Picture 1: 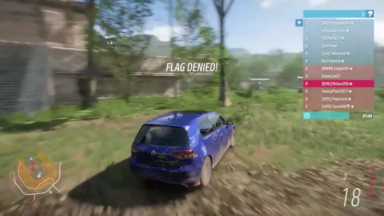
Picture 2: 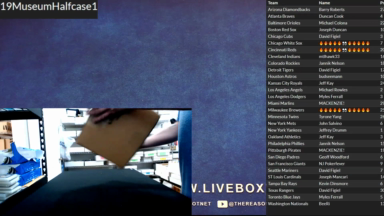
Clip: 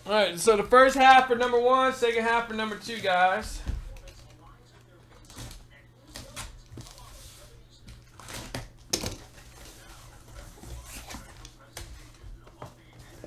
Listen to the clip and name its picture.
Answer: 2